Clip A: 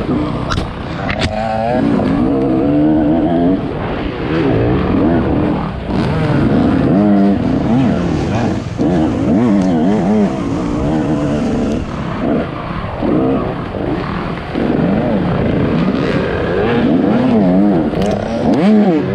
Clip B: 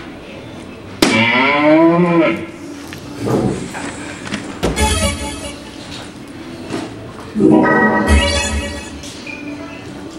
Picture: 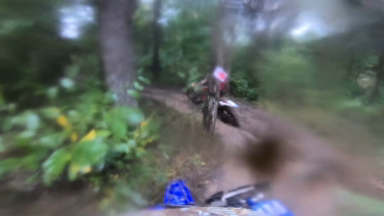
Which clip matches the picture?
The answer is A